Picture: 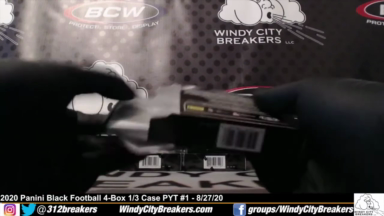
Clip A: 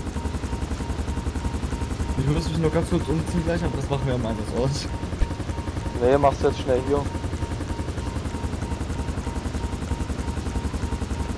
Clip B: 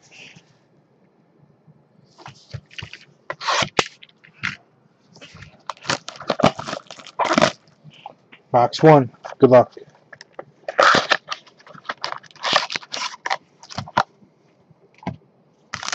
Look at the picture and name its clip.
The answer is B